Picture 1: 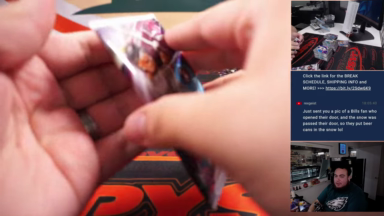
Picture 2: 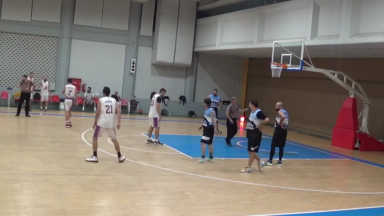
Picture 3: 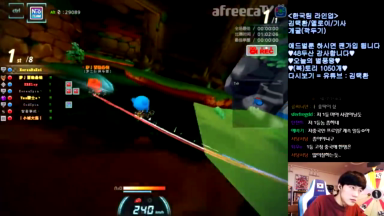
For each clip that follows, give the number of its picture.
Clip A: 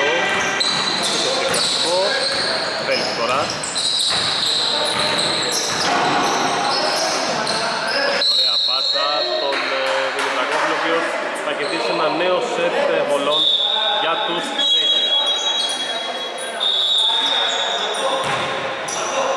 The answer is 2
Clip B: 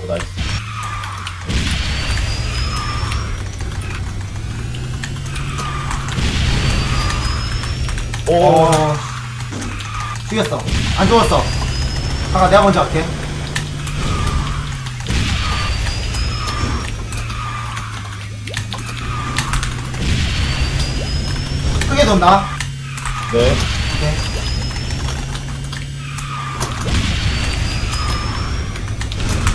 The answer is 3